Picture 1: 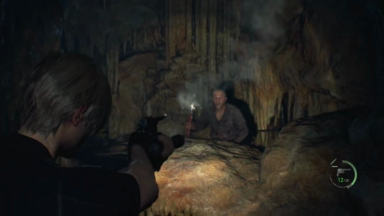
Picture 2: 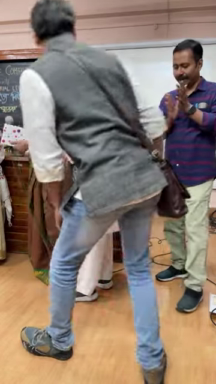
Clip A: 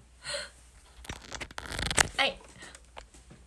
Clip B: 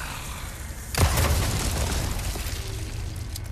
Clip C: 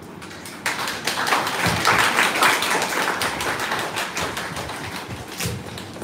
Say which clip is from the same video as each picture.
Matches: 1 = B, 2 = C